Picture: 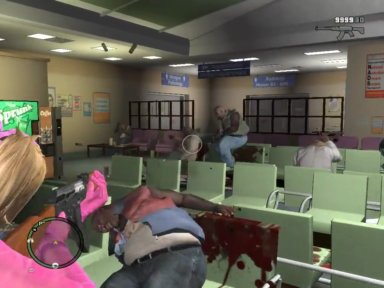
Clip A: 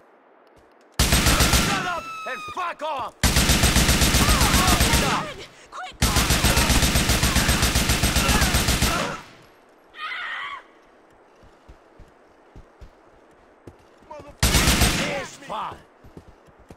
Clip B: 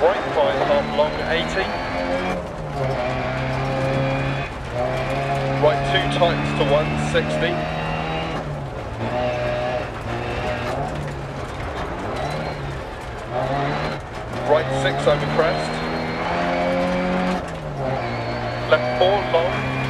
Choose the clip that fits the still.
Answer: A